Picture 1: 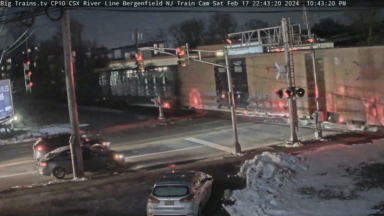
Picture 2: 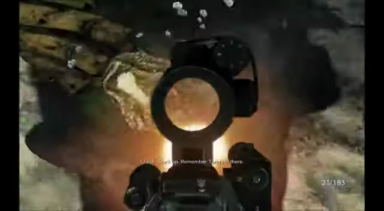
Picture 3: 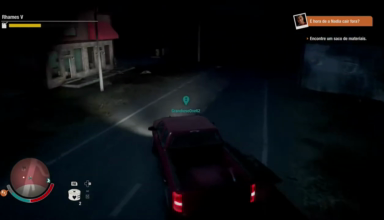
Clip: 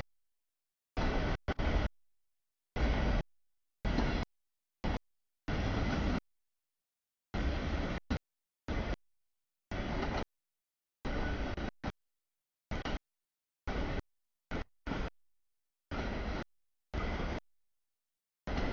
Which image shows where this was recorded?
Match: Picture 1